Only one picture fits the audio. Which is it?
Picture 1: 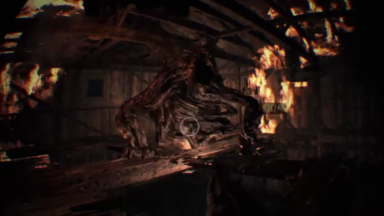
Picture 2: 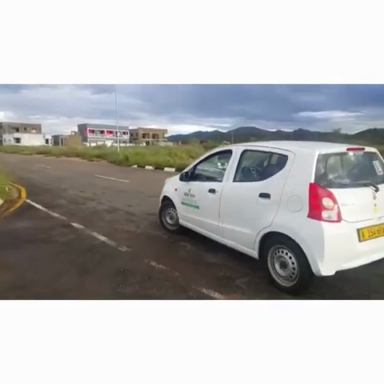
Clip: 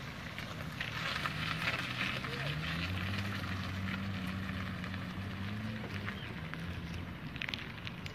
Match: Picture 2